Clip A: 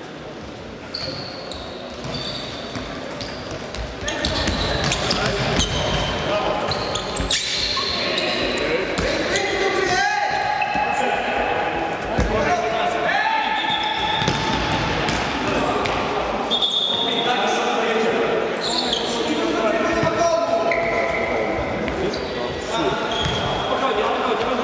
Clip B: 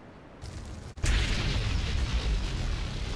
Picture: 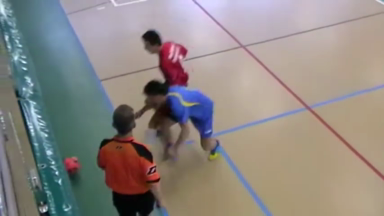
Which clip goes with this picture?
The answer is A